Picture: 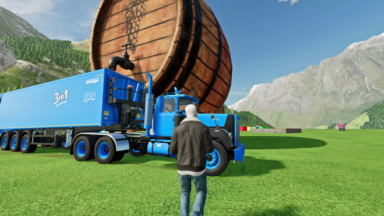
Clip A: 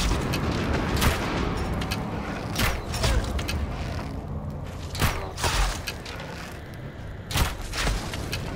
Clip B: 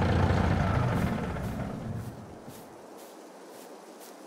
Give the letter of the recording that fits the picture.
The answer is B